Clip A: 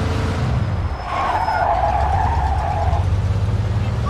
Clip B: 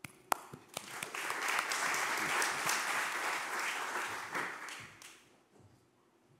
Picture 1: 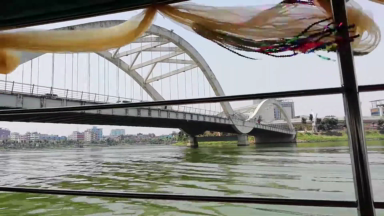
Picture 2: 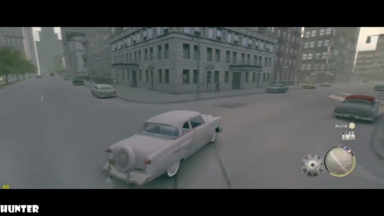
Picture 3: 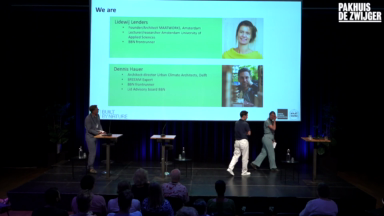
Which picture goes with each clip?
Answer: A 2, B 3